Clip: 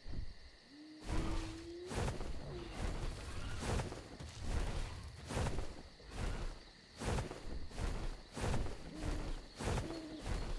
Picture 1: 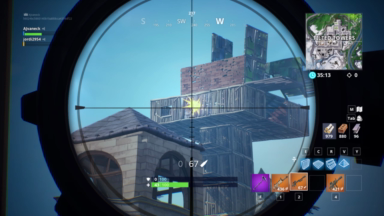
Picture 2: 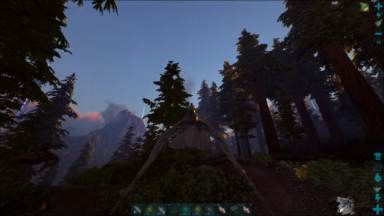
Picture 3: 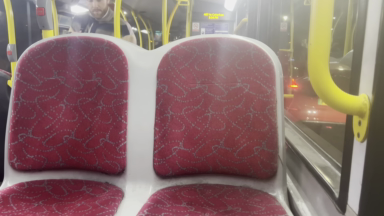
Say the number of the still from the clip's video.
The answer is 2